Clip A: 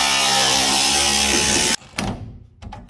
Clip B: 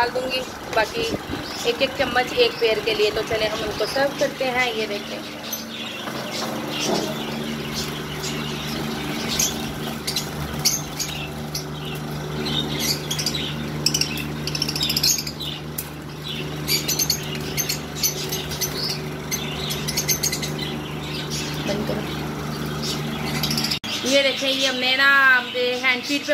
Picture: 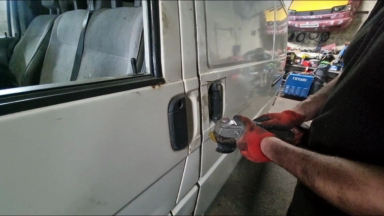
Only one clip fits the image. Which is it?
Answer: A